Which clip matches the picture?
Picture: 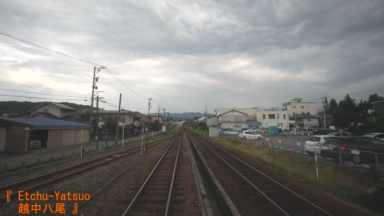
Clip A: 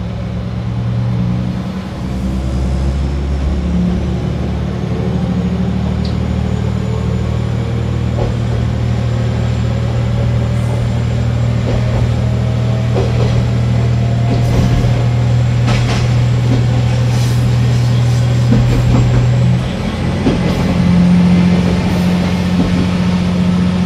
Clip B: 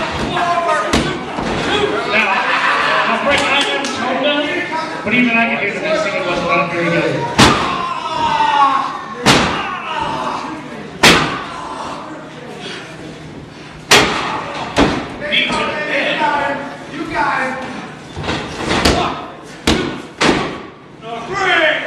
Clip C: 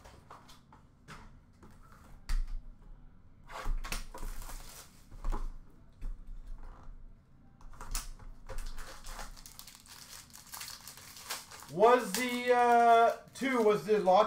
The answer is A